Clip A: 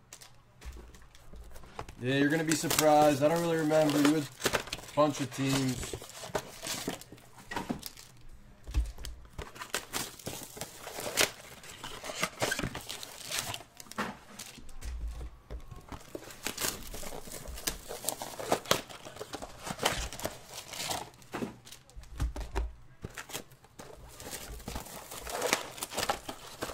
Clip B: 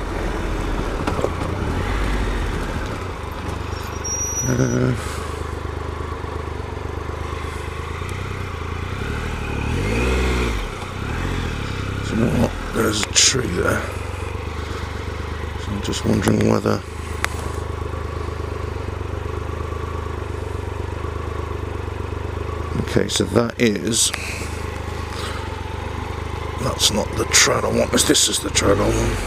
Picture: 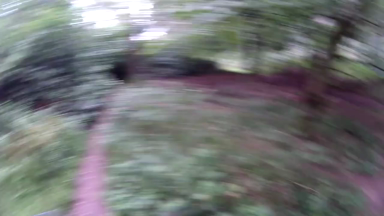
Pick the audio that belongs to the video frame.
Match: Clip B